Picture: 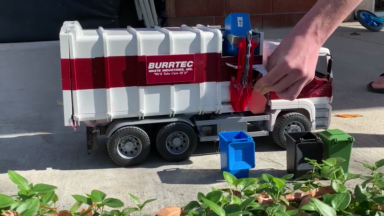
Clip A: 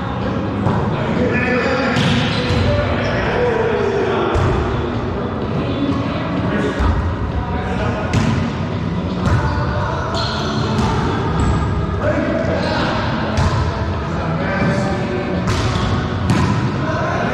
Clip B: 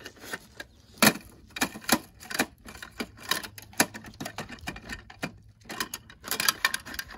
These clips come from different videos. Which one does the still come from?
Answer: B